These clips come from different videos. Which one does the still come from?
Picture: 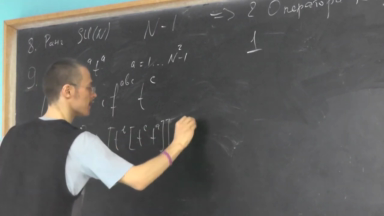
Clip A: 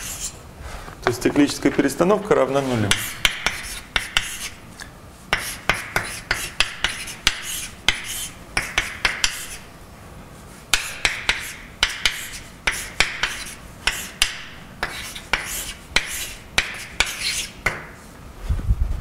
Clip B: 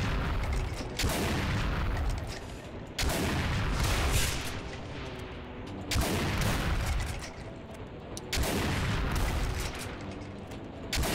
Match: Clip A